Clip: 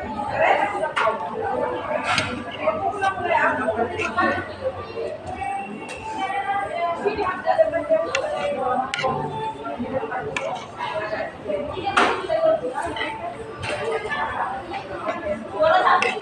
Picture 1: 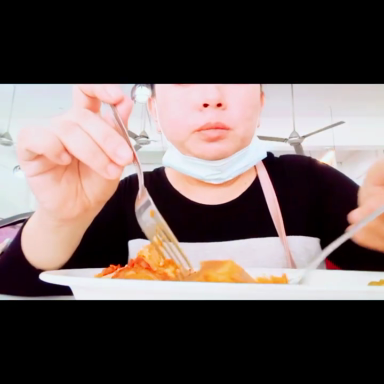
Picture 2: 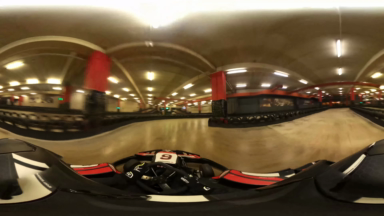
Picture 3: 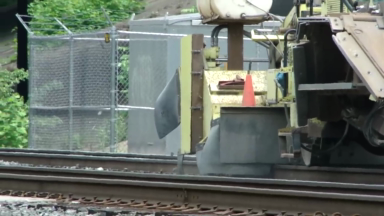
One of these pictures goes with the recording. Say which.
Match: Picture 1